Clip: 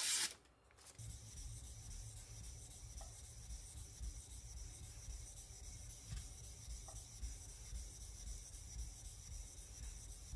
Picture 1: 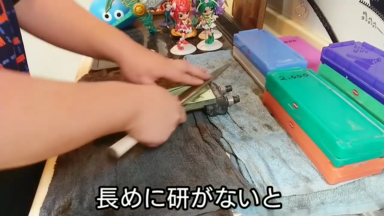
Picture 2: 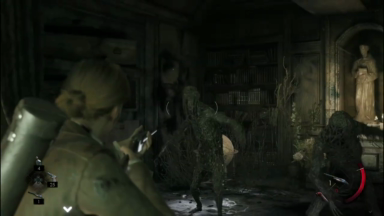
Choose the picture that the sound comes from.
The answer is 1